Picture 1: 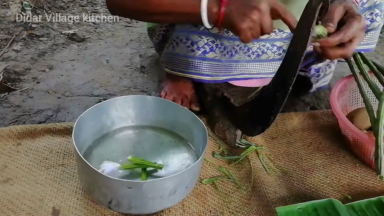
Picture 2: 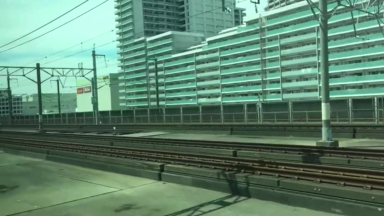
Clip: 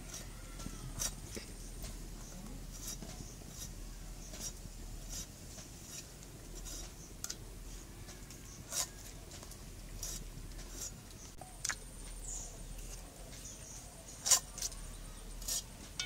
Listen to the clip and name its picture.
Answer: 1